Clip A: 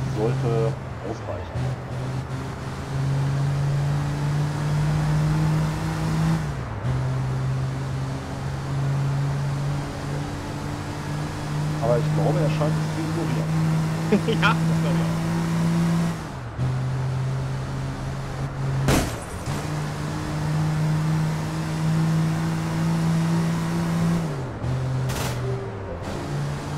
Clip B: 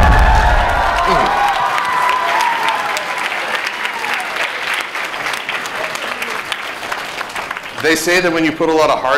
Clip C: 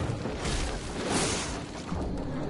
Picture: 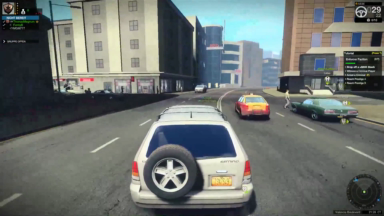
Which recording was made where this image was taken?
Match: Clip A